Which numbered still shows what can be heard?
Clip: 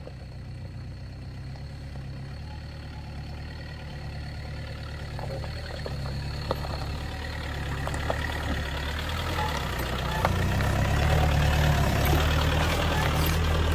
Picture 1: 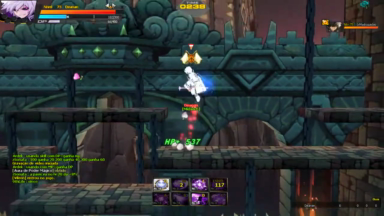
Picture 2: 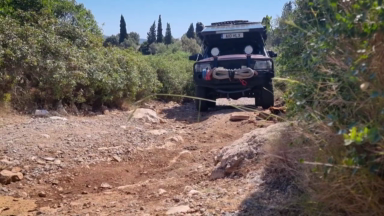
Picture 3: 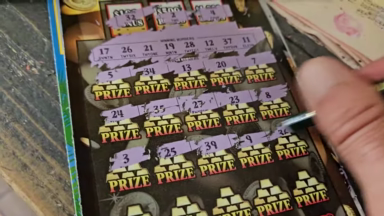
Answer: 2